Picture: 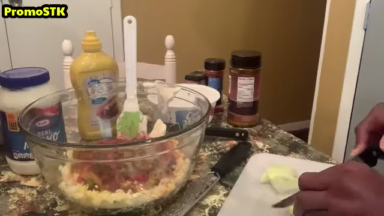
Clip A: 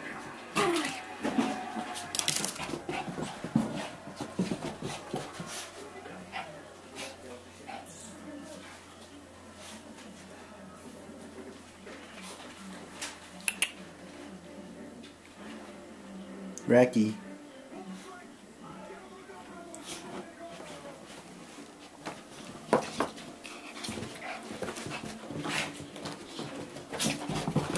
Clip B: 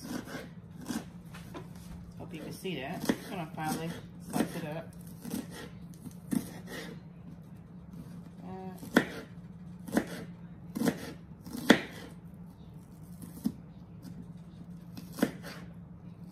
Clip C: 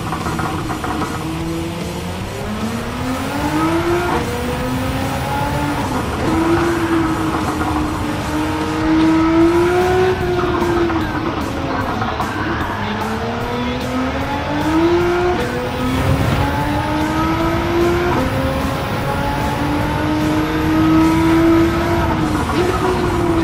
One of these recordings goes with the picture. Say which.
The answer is B